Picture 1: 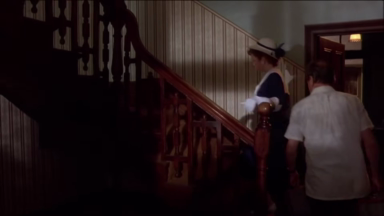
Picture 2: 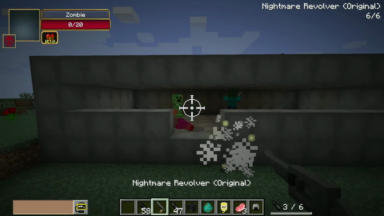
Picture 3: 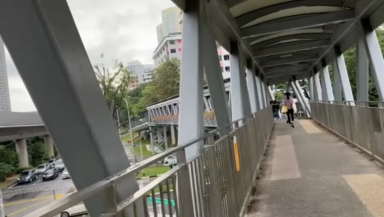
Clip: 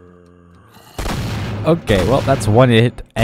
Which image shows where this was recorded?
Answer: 2